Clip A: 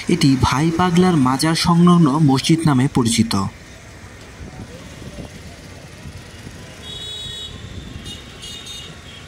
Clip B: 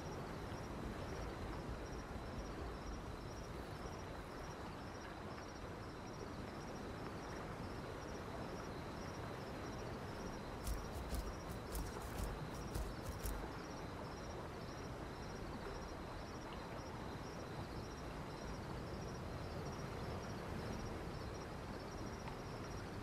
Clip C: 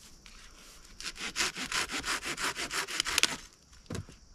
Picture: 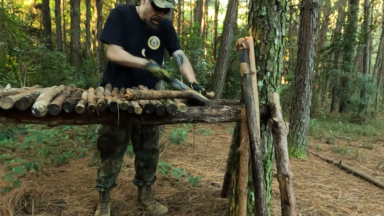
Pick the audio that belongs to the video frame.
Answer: C